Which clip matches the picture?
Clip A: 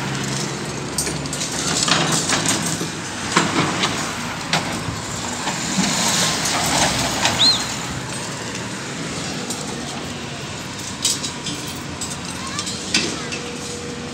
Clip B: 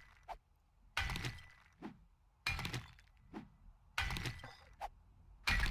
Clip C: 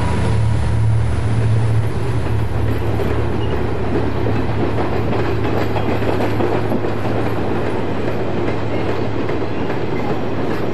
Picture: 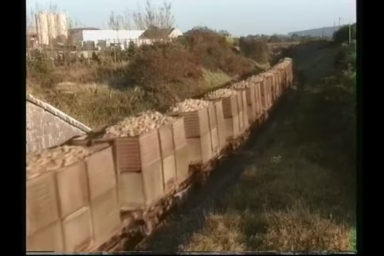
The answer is C